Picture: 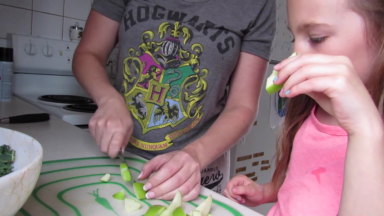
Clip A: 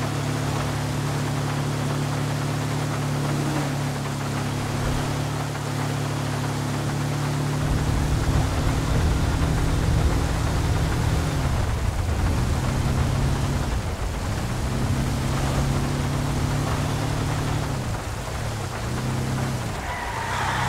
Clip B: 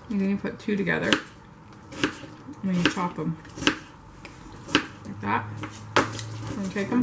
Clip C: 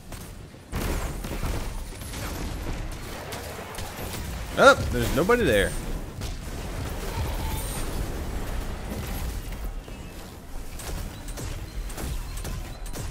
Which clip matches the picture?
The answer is B